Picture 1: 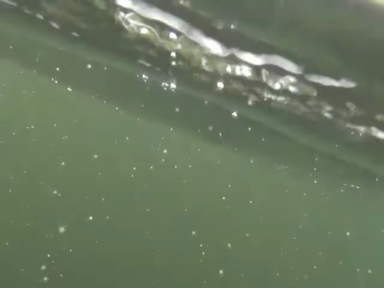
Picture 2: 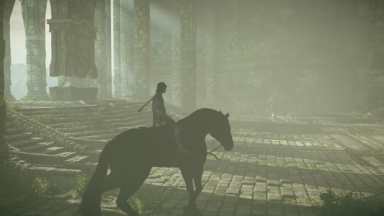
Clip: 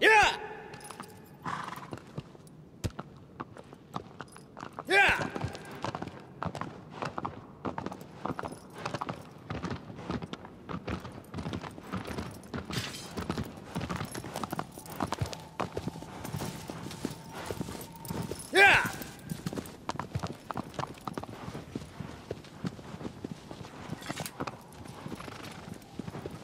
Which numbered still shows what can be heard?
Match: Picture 2